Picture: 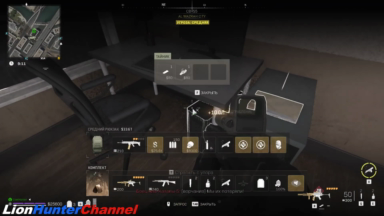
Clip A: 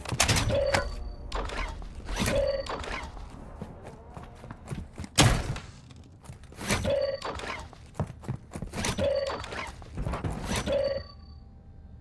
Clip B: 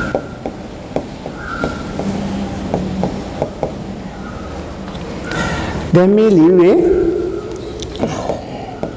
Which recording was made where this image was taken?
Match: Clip A